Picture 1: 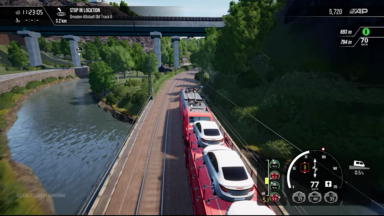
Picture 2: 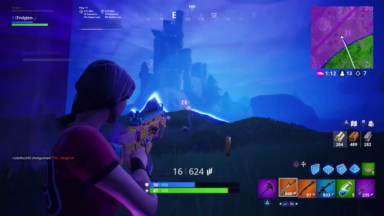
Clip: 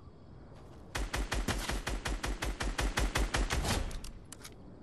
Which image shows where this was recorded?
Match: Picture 2